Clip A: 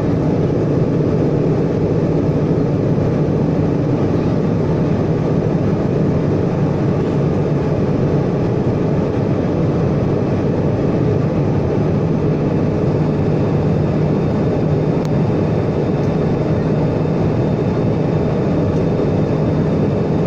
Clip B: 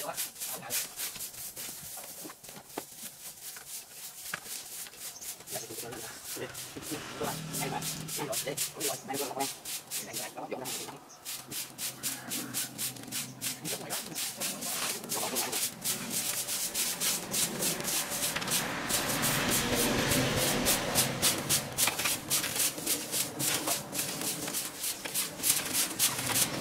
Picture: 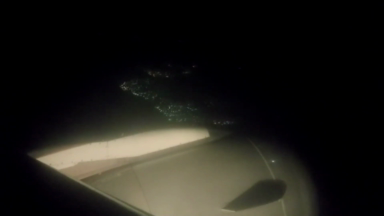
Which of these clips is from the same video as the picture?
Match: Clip A